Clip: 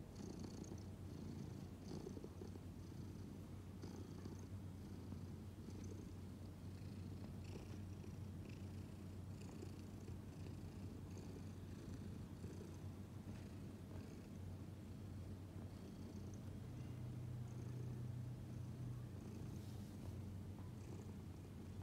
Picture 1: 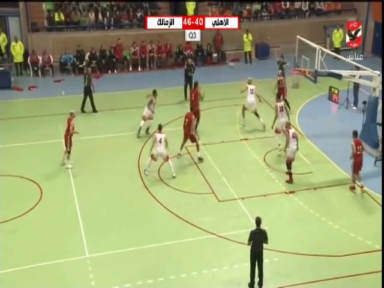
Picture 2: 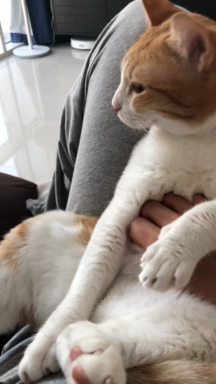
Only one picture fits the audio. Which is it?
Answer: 2